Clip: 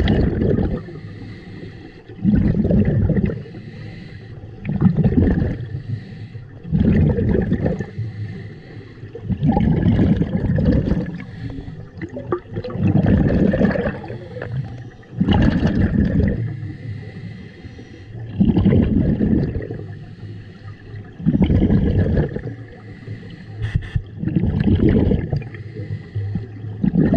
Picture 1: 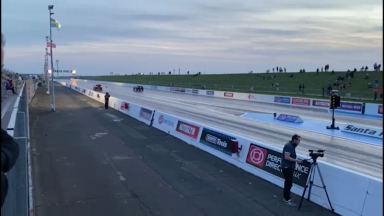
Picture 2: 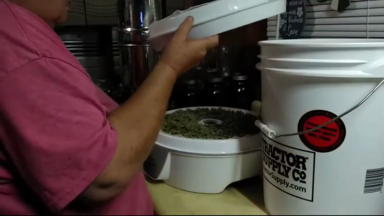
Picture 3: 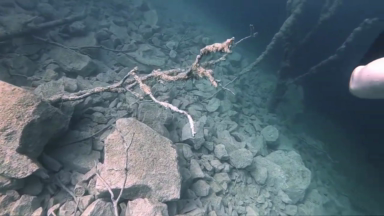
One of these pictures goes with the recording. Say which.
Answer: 3